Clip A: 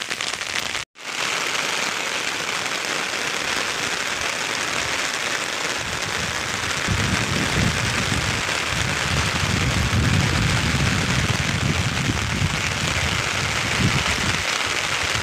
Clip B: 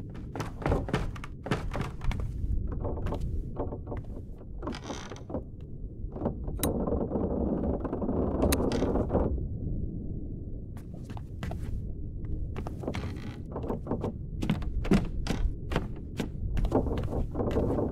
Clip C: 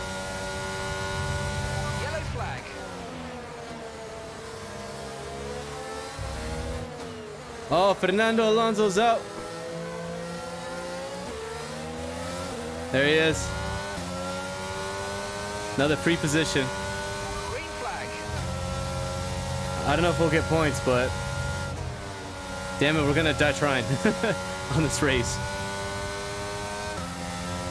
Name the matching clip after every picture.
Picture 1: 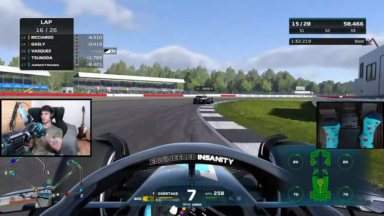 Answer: C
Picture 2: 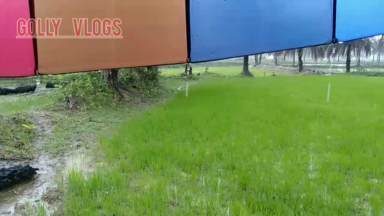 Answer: A